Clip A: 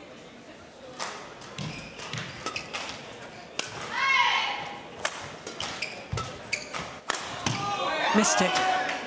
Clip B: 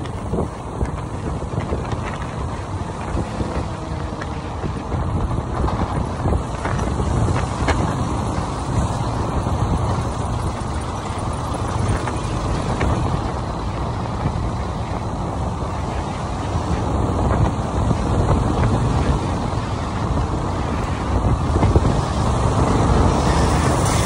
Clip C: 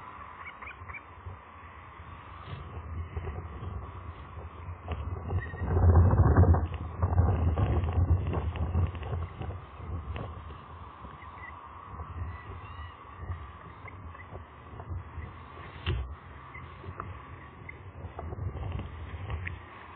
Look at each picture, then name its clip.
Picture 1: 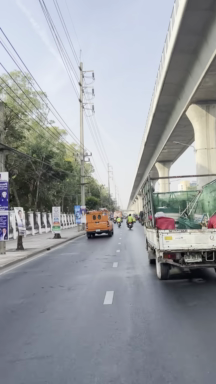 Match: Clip B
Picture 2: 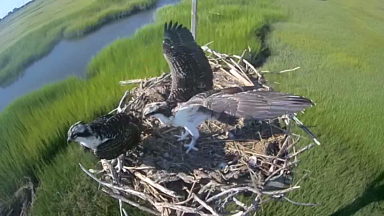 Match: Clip C